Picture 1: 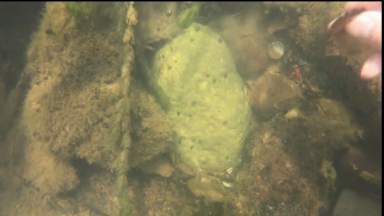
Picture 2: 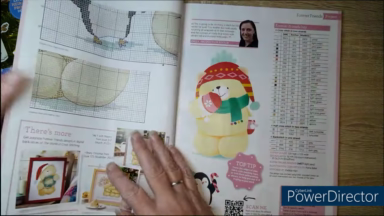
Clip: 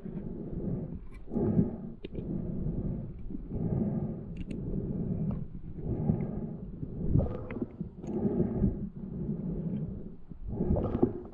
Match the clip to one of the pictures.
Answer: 1